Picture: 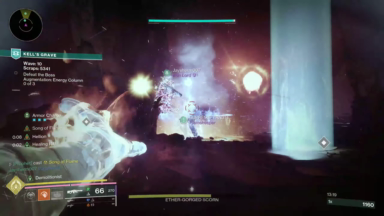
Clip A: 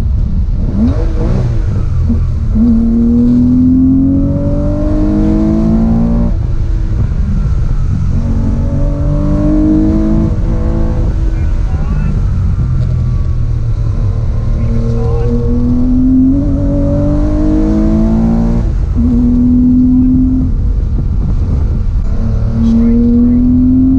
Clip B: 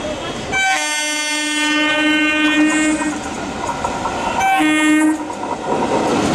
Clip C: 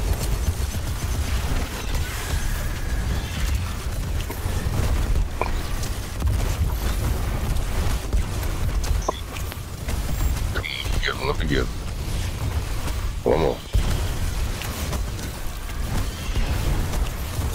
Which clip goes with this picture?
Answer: C